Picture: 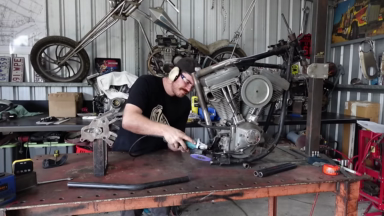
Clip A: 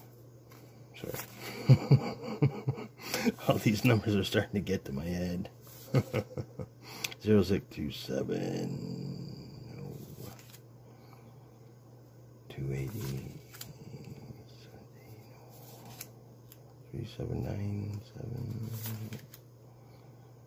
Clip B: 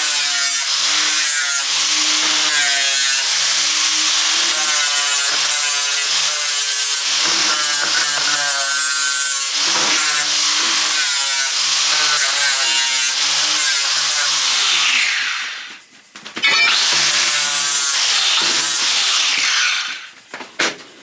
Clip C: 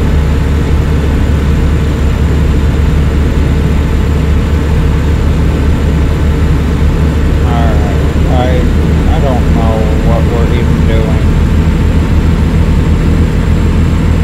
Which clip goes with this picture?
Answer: B